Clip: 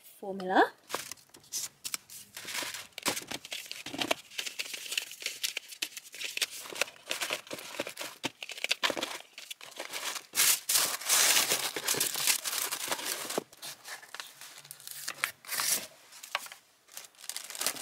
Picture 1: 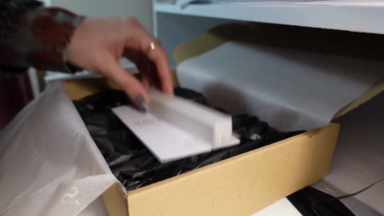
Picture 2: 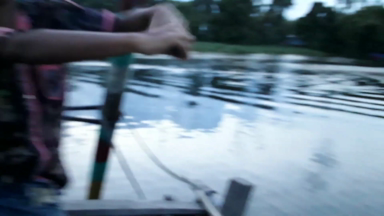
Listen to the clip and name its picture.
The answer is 1